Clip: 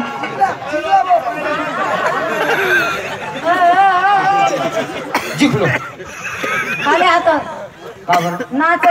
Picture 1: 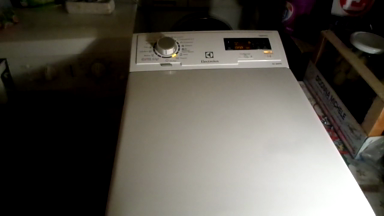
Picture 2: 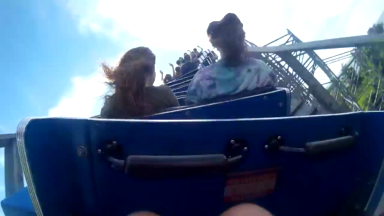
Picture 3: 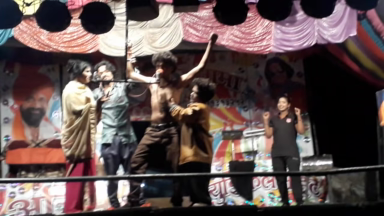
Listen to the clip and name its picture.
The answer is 3